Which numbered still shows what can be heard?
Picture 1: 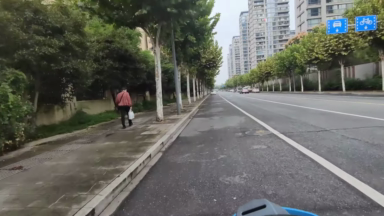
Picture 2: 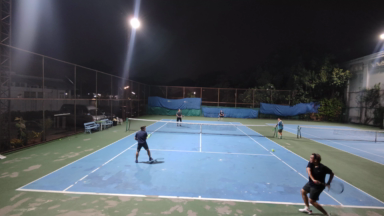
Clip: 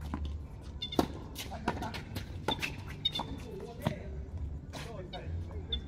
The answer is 2